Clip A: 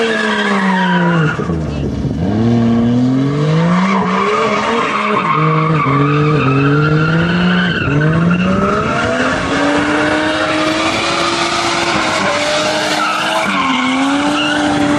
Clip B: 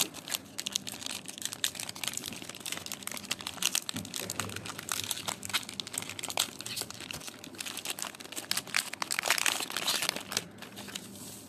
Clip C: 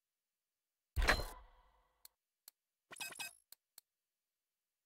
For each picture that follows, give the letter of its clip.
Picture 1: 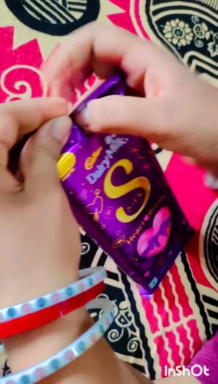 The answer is B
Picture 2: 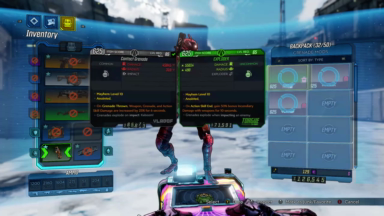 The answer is C